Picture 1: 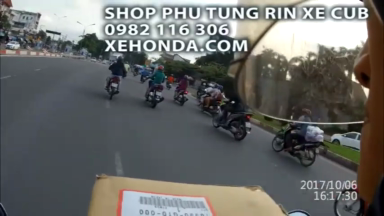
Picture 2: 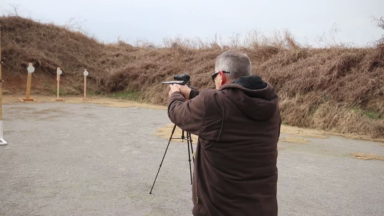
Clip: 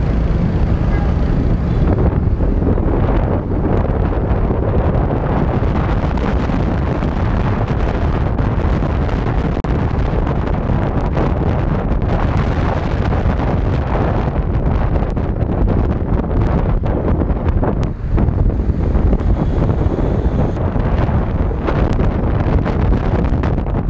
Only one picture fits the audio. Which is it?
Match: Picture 1